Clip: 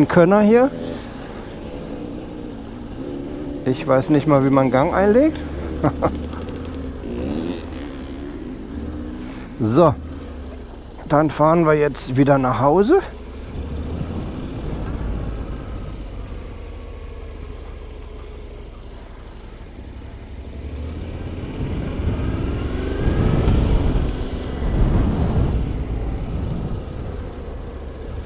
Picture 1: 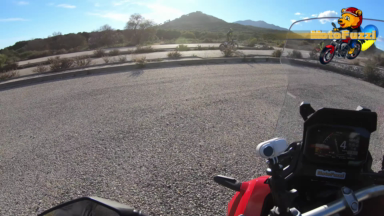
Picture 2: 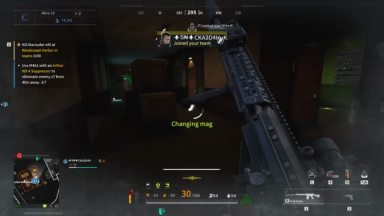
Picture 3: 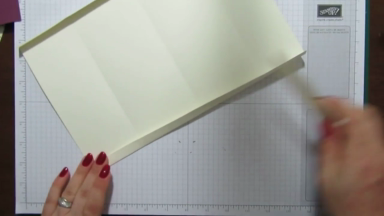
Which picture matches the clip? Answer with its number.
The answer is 1